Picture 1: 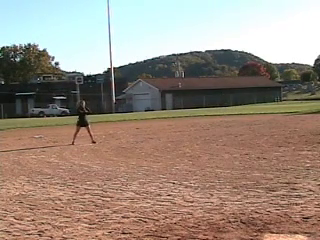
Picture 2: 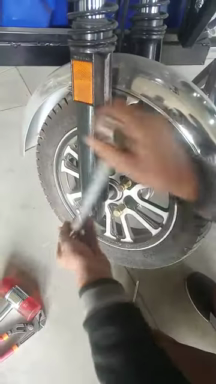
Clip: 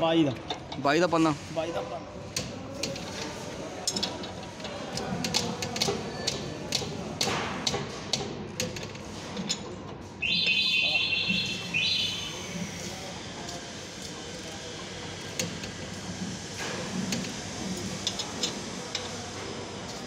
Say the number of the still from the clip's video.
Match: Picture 2